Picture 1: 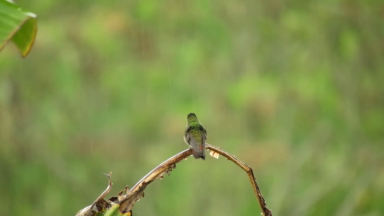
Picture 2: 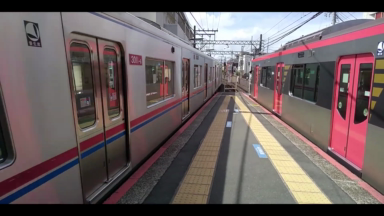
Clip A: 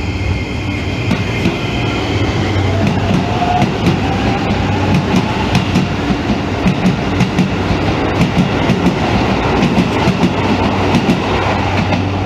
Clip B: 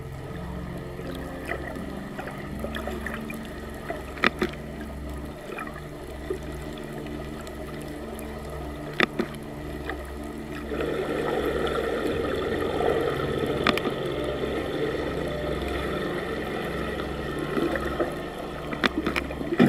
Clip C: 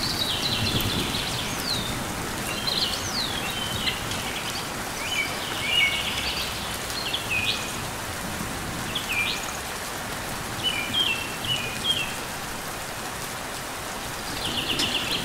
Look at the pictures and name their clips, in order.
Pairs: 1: C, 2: A